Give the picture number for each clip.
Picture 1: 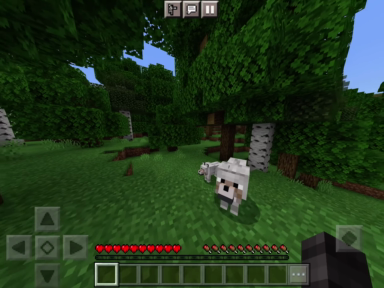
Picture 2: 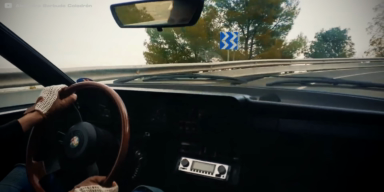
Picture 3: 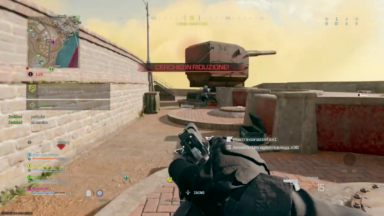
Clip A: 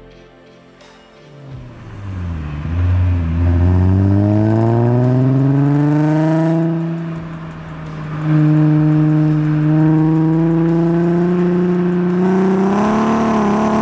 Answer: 2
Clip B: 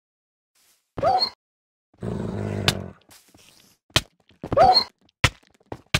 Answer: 1